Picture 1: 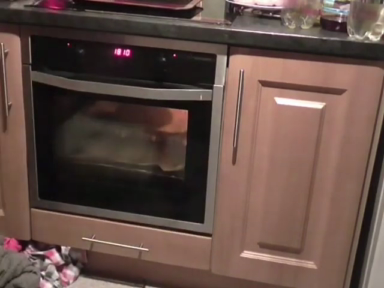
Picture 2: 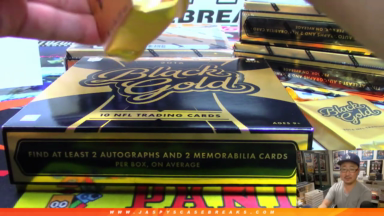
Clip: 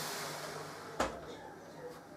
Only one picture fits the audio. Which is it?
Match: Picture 1